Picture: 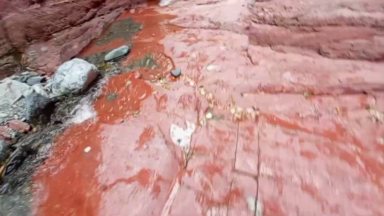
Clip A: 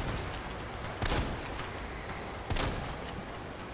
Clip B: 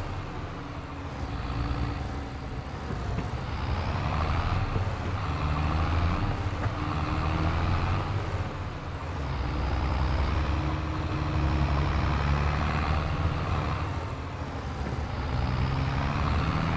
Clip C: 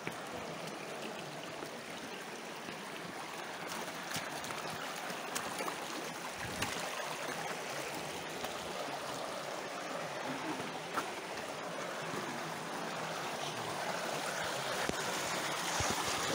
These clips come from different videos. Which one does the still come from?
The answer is C